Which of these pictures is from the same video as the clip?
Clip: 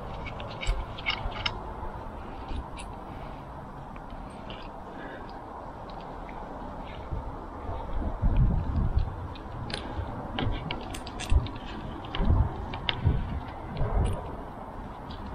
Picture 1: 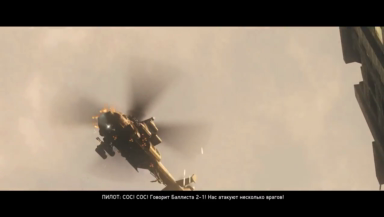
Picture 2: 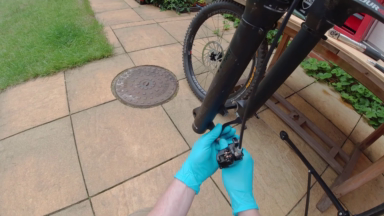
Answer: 2